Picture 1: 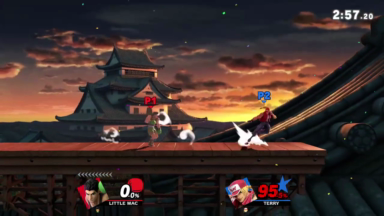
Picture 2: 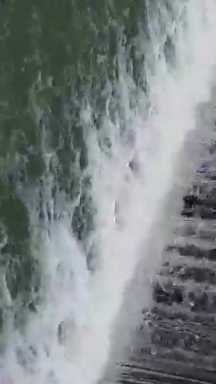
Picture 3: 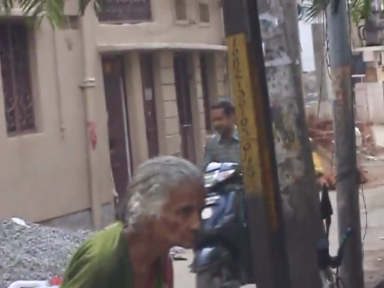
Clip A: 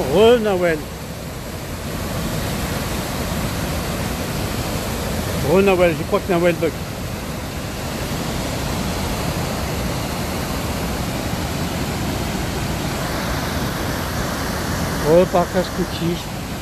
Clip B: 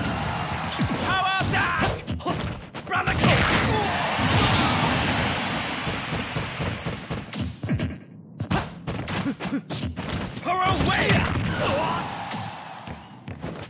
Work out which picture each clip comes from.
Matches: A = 2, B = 1